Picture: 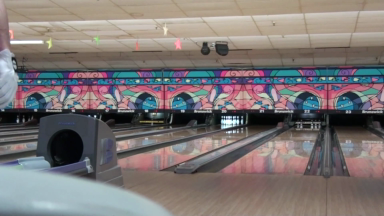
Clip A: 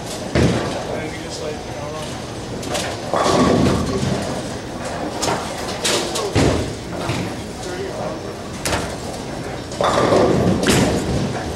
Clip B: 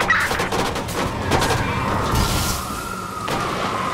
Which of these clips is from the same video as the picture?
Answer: A